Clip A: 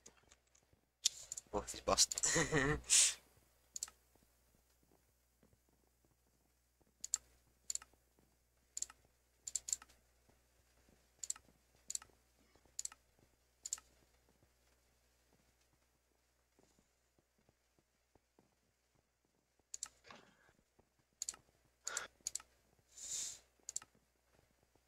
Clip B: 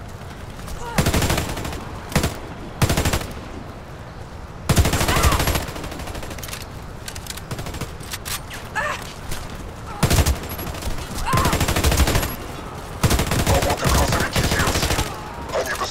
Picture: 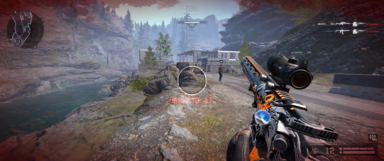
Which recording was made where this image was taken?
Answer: B